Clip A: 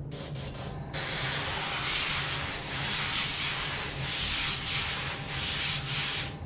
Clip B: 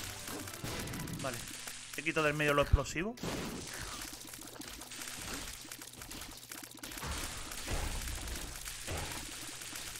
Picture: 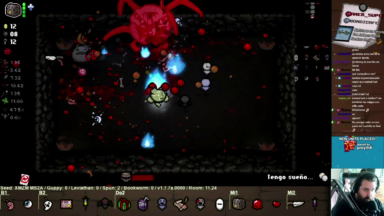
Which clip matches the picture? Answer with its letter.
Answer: B